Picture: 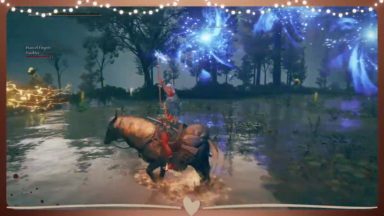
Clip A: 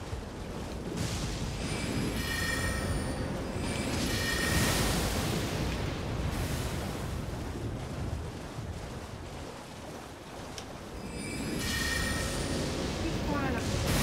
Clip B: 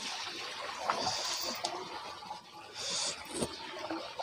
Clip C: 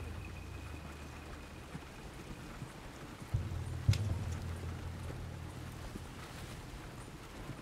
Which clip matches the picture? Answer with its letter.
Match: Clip A